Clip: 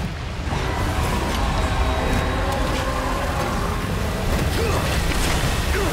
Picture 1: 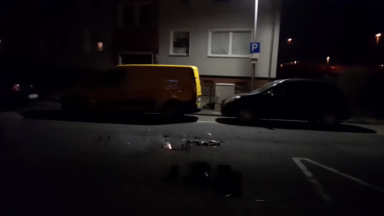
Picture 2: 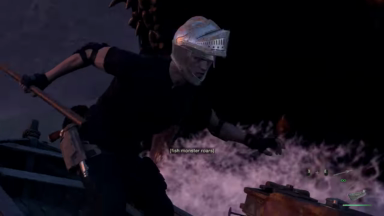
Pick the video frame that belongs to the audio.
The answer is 2